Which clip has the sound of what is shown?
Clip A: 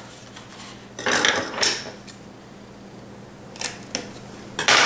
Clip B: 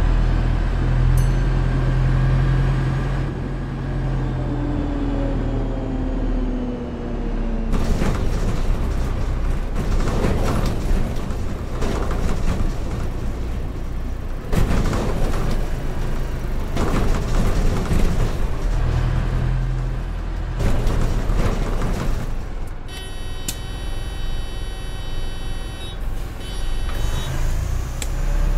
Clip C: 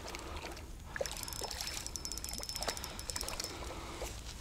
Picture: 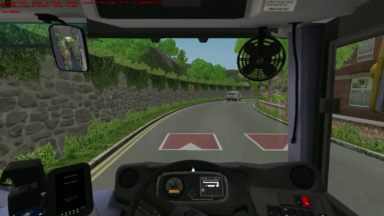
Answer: B